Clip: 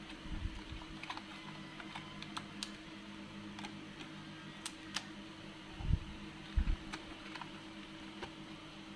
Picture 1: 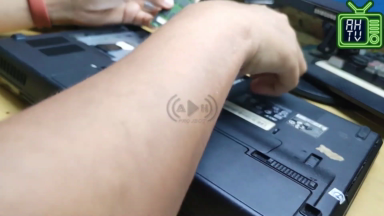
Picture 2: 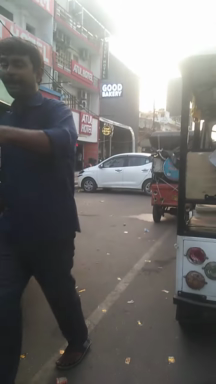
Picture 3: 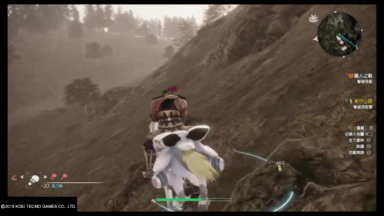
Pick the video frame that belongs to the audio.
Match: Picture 1